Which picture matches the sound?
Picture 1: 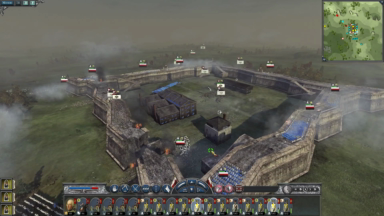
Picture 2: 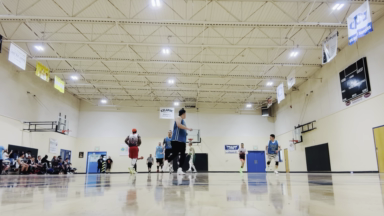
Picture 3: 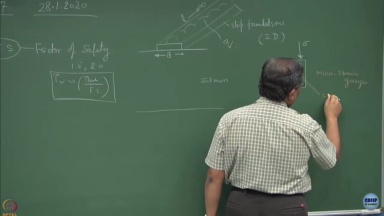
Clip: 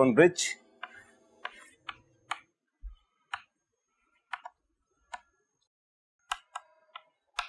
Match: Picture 3